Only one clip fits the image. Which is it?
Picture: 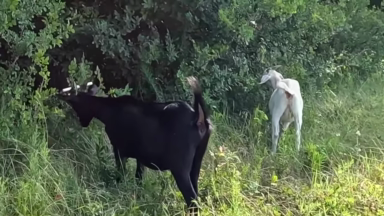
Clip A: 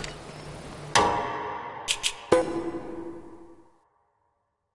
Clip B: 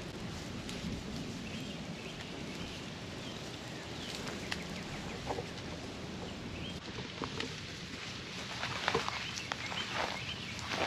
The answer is B